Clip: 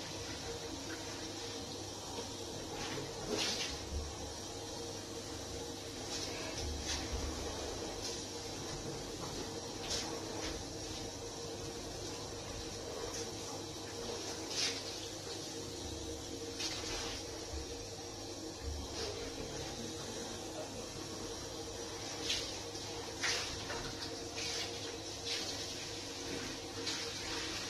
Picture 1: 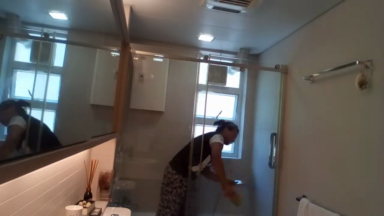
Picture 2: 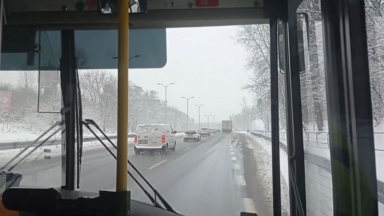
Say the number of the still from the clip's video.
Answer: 1